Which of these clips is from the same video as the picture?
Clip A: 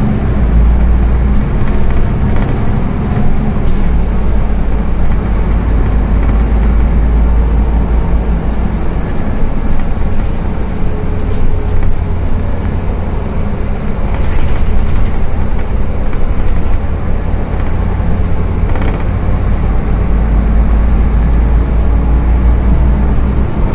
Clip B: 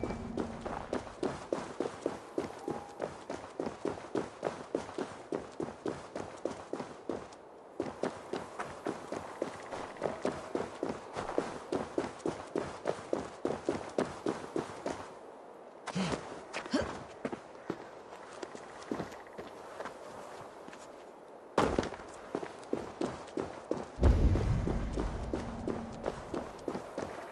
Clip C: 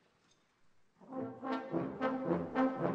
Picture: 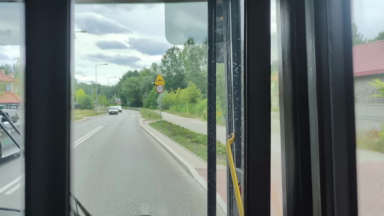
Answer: A